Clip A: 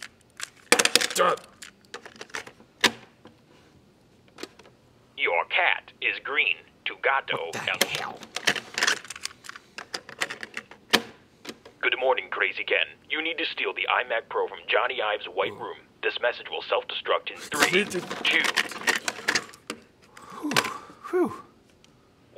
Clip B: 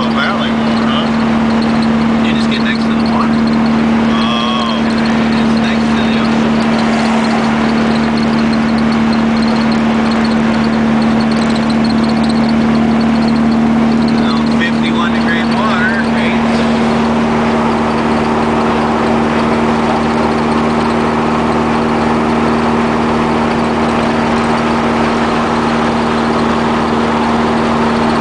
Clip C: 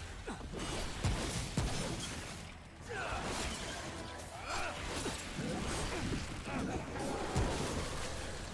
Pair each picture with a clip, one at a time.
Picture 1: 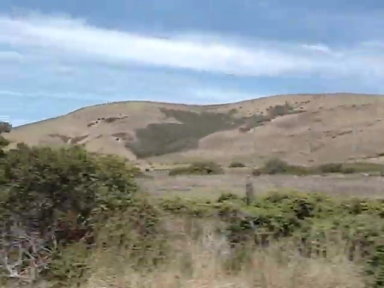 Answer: B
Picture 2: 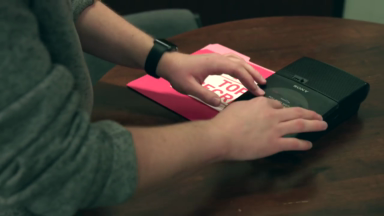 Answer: A